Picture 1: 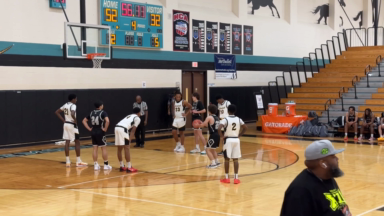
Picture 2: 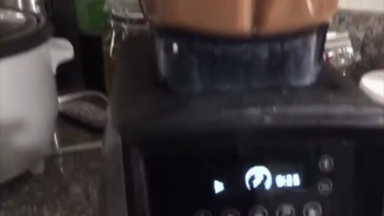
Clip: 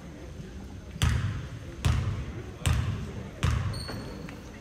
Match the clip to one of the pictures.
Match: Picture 1